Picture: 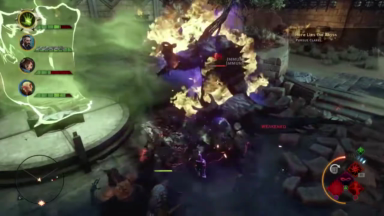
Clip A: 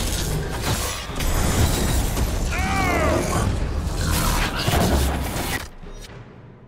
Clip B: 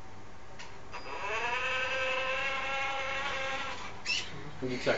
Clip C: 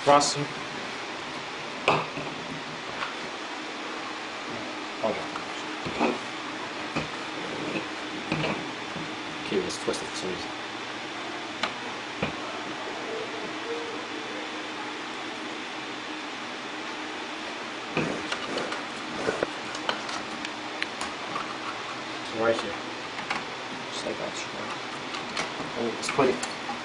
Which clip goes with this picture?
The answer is A